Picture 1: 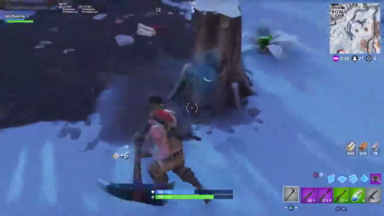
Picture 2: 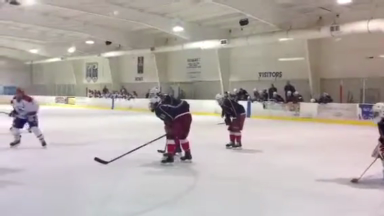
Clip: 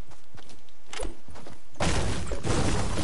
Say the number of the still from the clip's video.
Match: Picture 1